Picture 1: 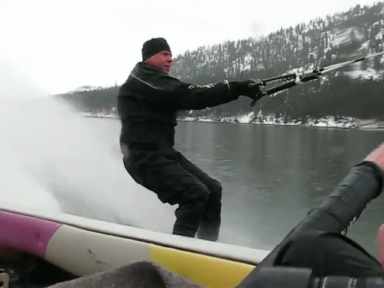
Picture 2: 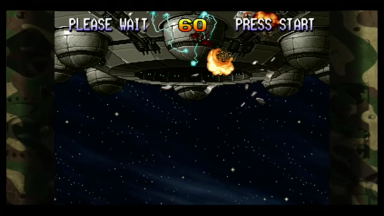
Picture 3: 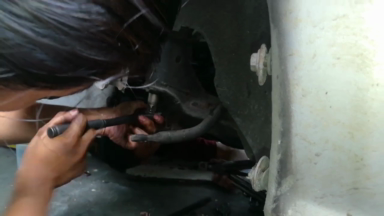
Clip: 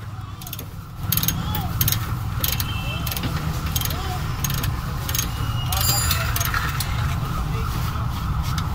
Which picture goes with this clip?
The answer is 3